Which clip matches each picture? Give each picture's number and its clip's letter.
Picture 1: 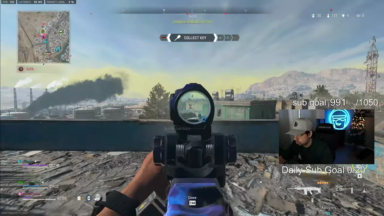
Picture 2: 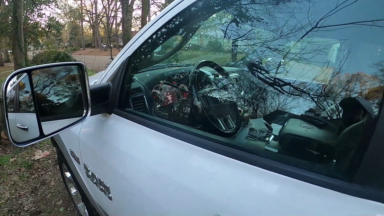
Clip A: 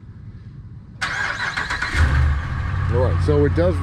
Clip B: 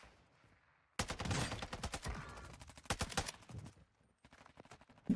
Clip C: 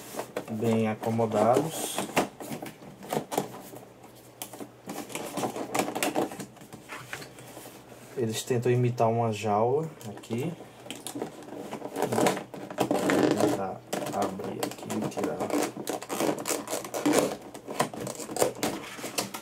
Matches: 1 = B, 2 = A